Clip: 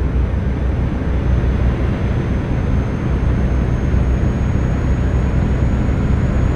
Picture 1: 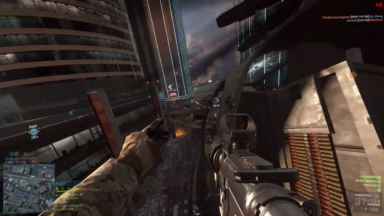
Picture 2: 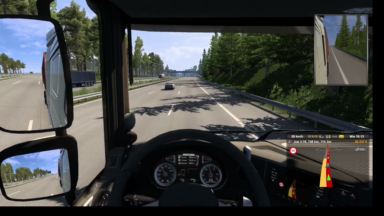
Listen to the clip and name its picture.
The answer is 2